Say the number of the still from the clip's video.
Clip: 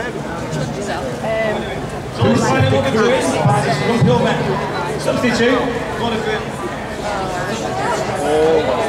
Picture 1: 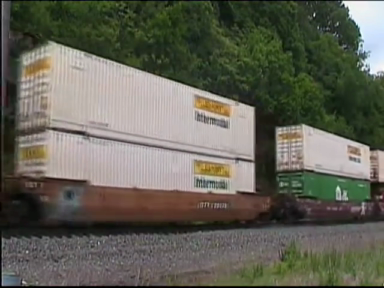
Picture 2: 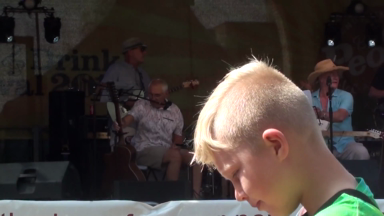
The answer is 2